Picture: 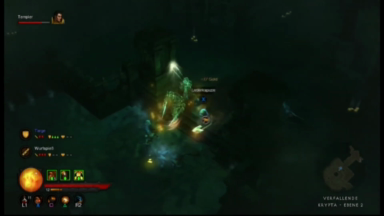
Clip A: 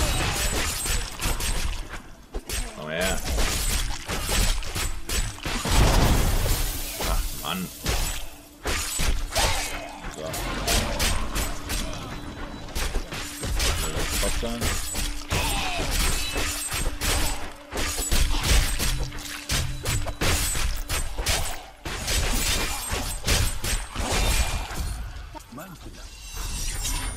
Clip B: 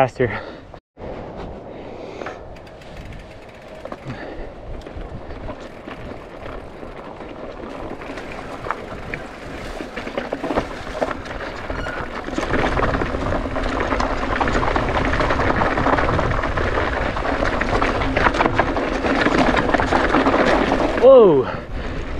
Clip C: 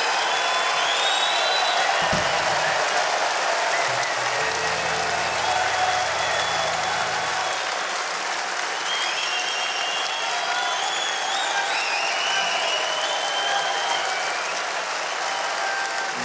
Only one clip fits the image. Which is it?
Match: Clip A